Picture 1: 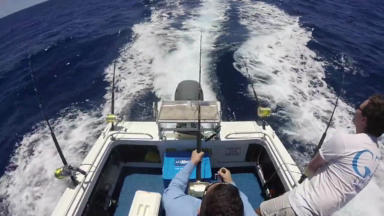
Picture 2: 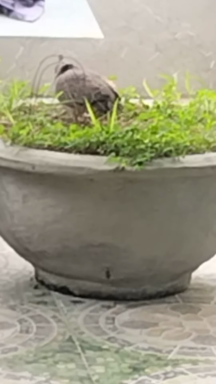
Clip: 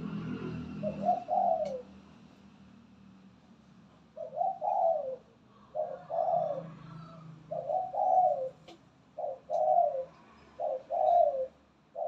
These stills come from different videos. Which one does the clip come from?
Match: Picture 2